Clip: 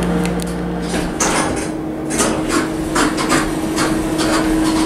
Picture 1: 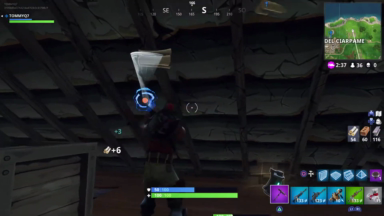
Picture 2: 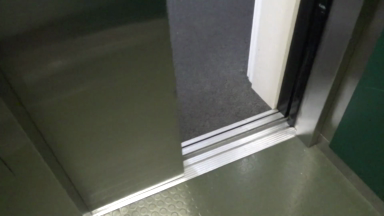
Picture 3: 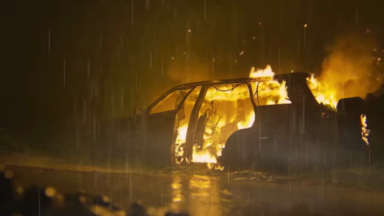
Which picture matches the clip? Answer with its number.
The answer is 2